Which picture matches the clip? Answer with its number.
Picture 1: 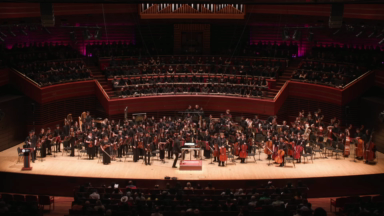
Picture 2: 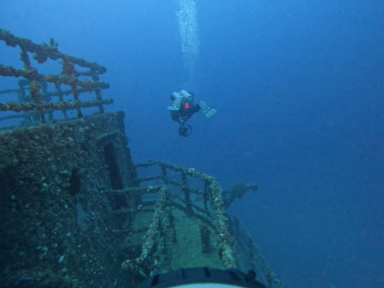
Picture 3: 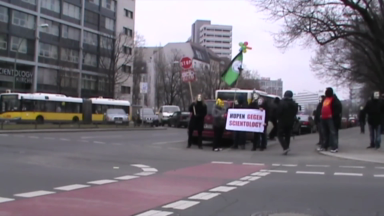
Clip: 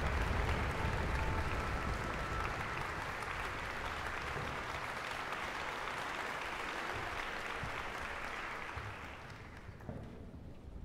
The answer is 1